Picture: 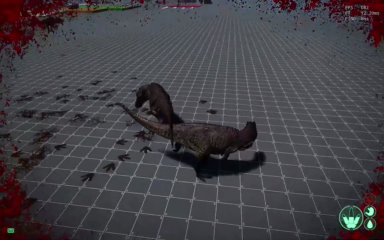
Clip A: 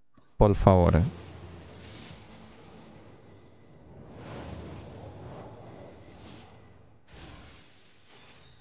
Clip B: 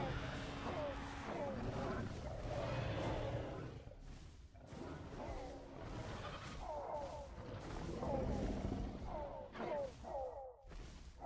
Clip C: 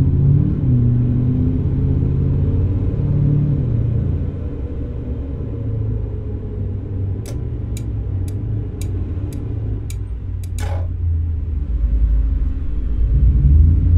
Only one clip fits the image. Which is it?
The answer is B